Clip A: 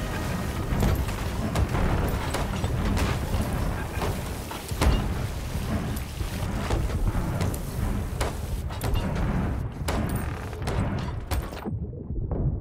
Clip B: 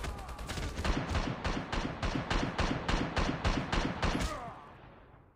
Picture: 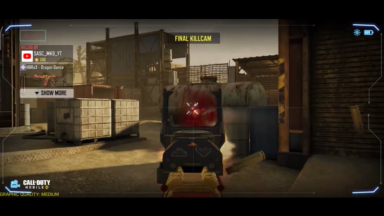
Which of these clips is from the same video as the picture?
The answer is B